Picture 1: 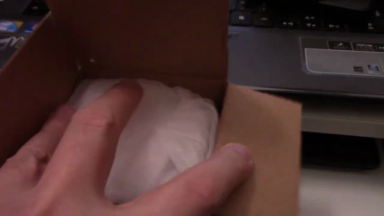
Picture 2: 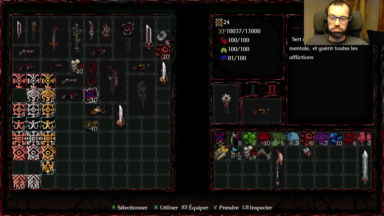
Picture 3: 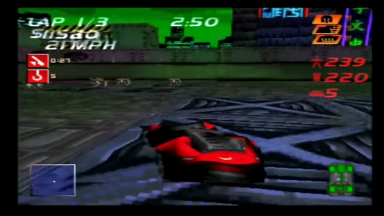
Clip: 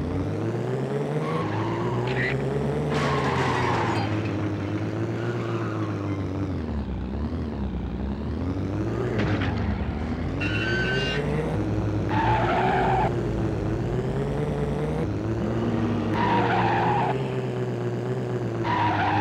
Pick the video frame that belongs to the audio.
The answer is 3